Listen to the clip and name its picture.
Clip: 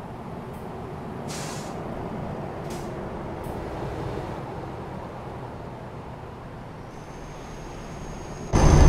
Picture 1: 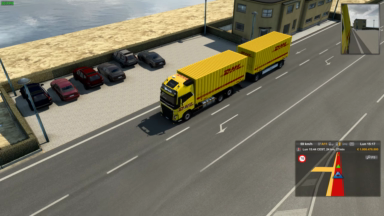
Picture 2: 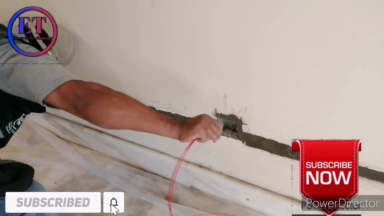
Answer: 1